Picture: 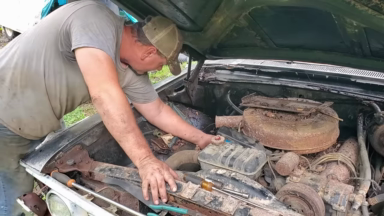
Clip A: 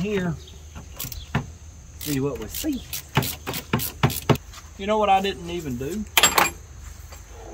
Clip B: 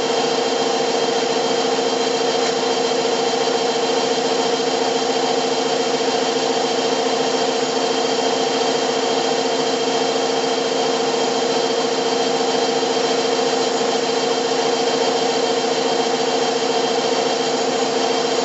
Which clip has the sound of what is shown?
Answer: A